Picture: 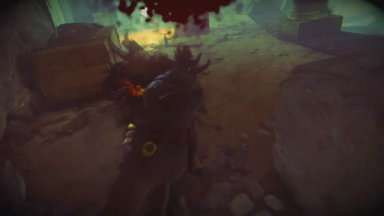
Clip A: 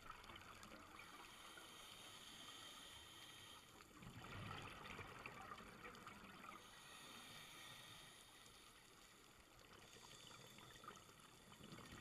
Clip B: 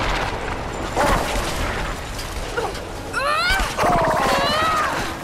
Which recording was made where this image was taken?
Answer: B